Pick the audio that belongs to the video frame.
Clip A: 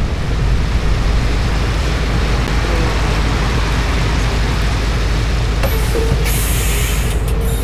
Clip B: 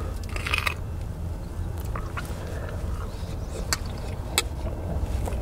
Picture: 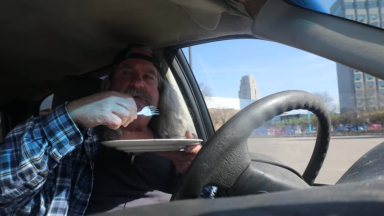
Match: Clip B